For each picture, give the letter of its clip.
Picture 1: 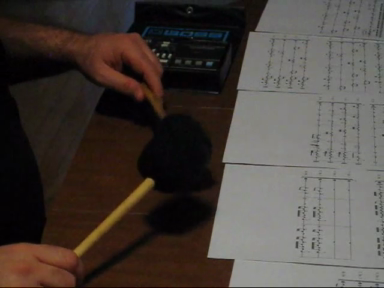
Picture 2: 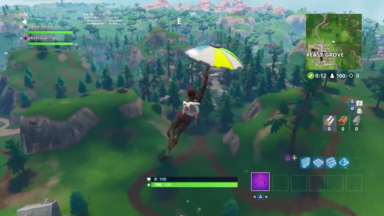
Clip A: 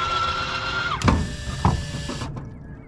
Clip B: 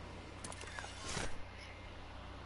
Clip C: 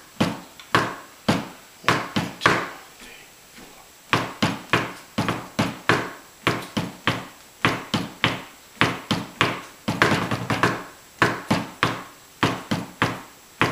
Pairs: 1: C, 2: B